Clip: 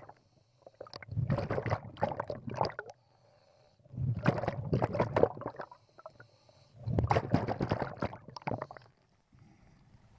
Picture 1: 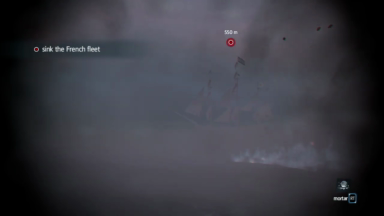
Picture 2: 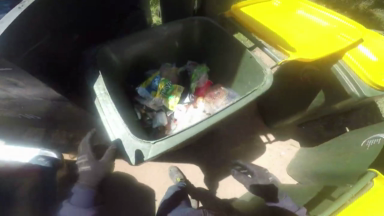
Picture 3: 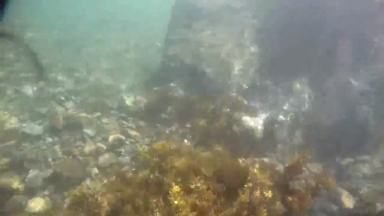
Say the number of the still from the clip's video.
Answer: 3